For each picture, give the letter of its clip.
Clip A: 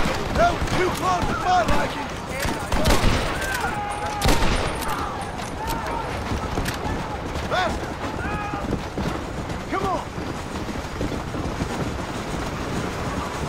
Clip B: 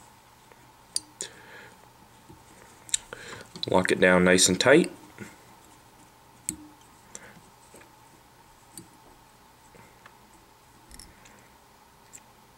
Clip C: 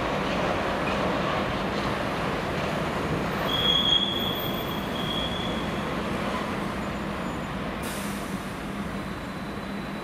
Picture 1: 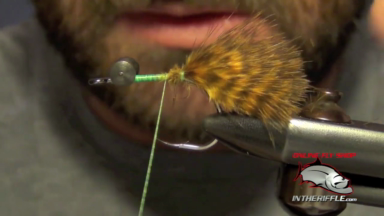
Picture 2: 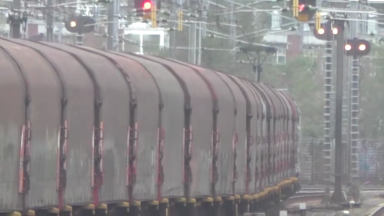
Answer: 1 B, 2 C